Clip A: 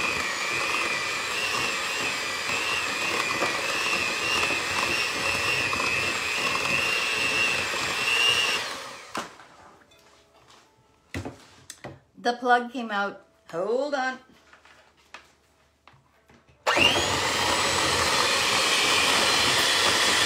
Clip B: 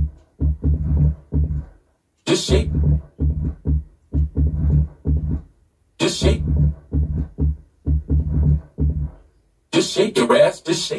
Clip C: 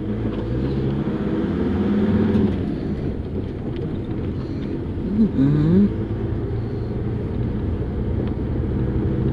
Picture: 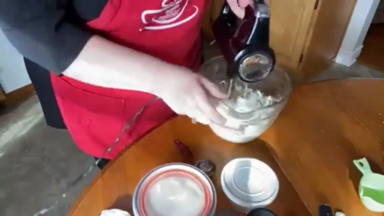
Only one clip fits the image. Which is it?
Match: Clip A